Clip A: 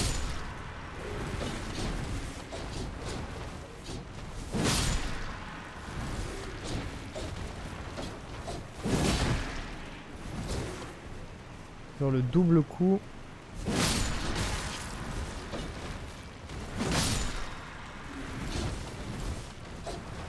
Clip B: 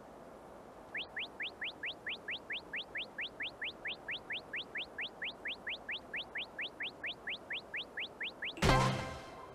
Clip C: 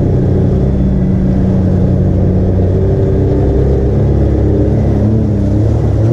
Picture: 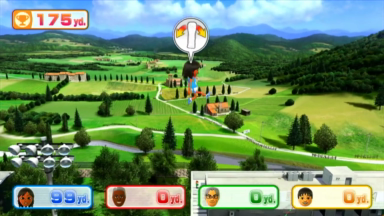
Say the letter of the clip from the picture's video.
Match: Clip B